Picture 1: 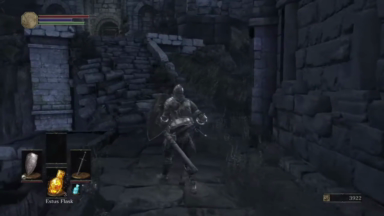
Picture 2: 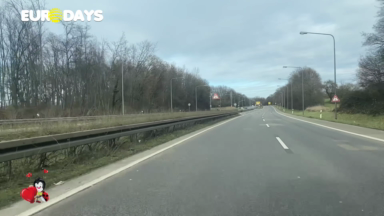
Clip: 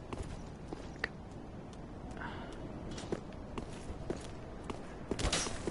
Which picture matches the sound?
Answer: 1